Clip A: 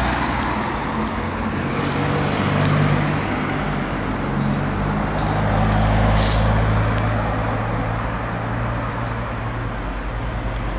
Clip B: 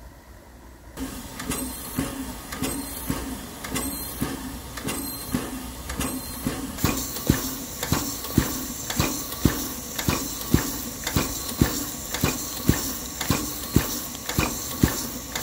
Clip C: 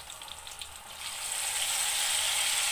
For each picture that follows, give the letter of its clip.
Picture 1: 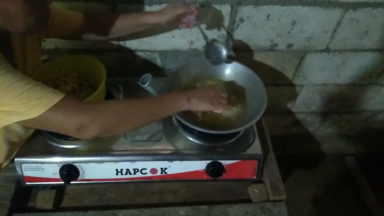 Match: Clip C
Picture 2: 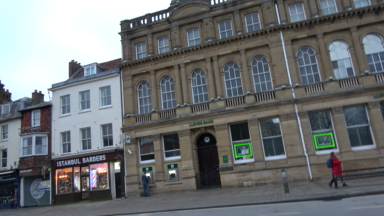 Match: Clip A